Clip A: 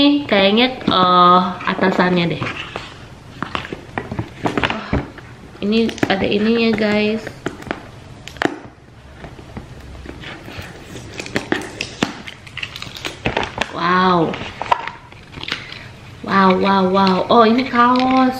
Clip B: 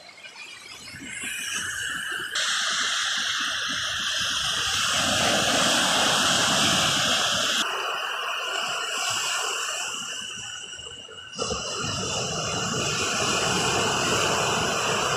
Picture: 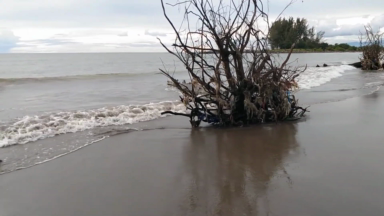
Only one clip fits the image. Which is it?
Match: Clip B